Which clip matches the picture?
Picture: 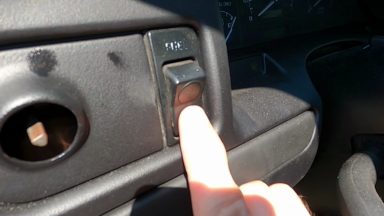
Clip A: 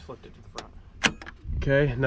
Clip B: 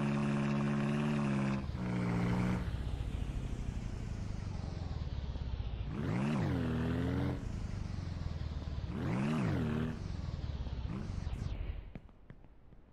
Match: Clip A